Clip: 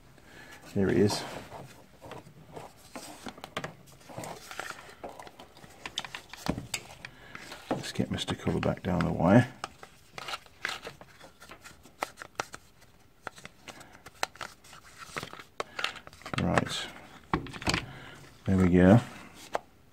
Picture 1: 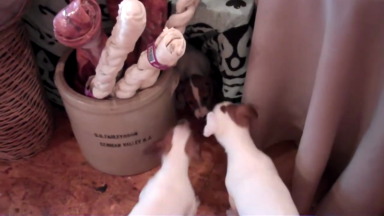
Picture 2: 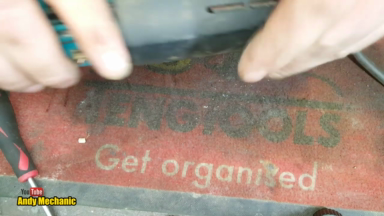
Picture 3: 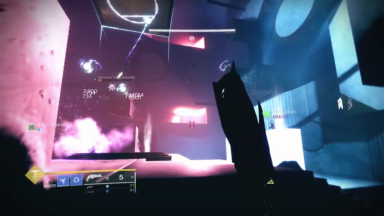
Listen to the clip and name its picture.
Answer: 2